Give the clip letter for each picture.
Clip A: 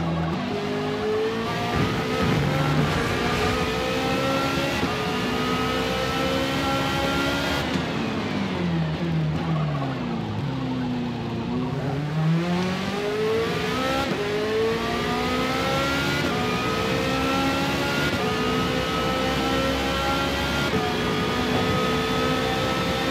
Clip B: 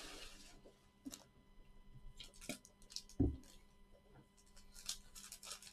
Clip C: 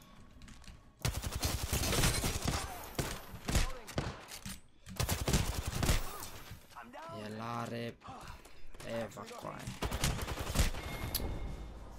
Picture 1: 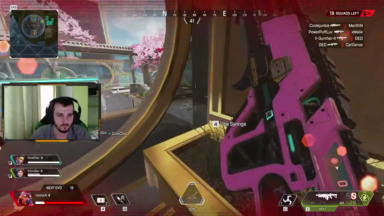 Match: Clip C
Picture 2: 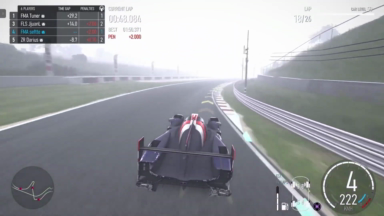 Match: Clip A